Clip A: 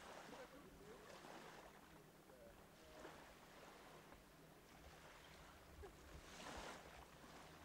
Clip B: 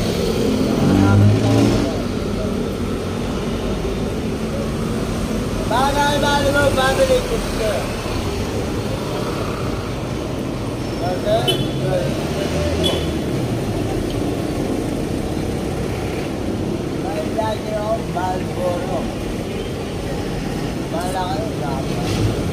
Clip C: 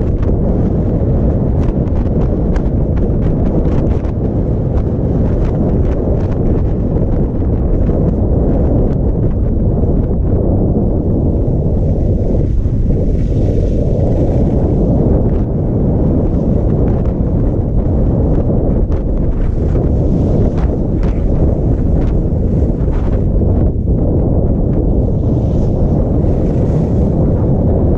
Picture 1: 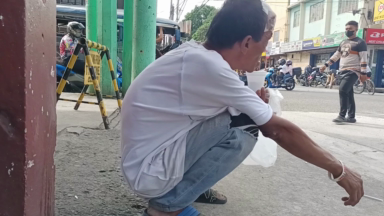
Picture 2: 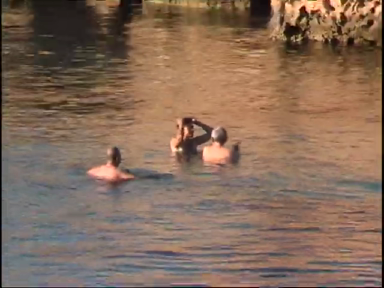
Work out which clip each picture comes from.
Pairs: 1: B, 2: A